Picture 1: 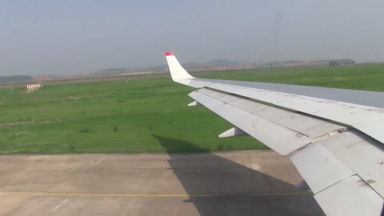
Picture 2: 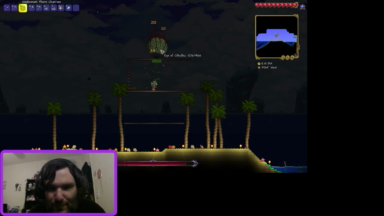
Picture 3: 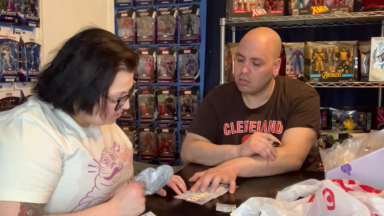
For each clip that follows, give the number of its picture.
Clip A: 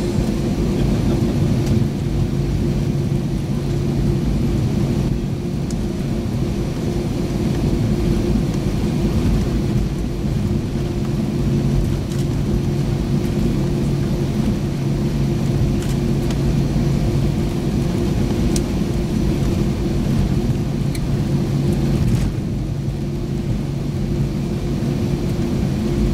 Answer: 1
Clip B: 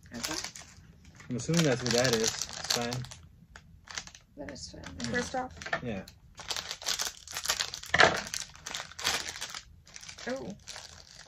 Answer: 3